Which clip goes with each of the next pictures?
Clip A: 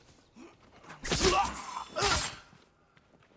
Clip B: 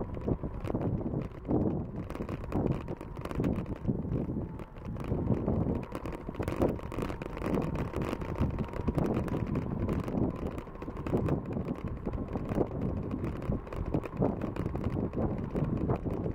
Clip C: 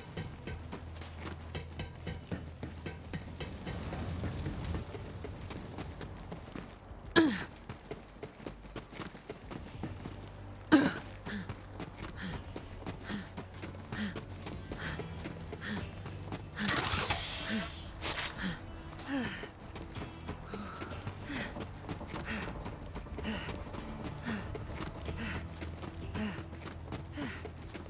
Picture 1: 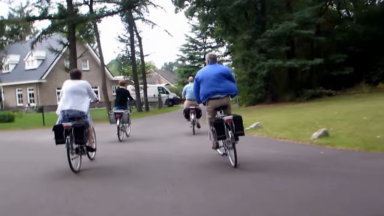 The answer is B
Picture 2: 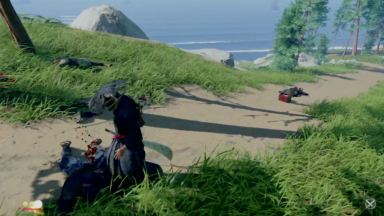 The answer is A